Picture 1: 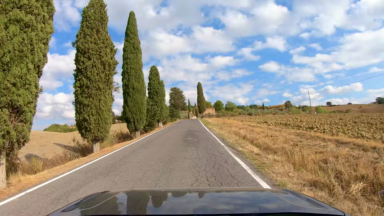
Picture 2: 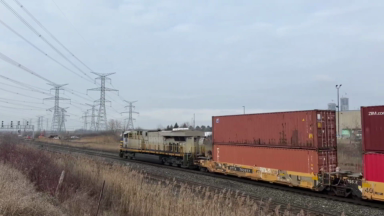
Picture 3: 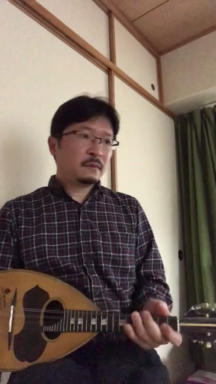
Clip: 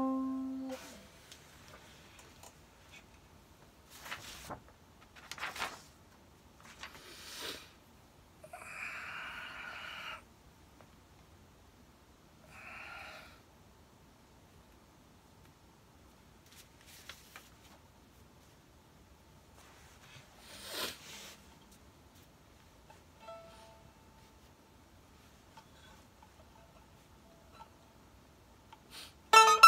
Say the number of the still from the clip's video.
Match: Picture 3